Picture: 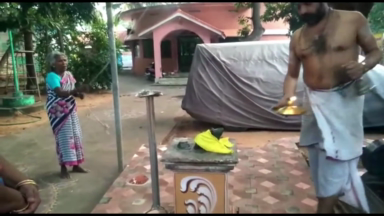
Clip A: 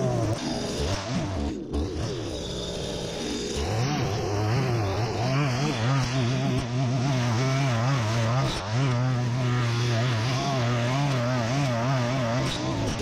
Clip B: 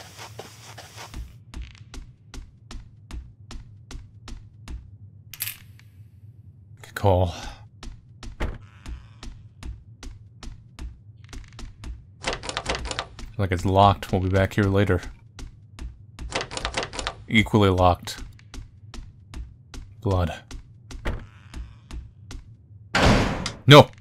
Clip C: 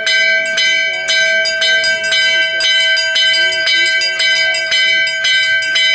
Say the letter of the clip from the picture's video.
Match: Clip C